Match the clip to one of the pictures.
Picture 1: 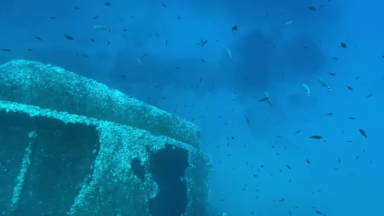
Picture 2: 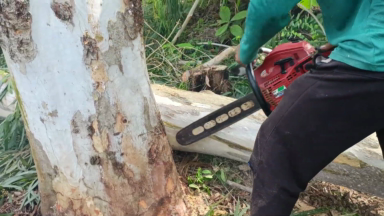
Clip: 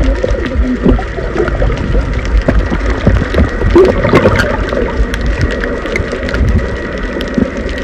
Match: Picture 1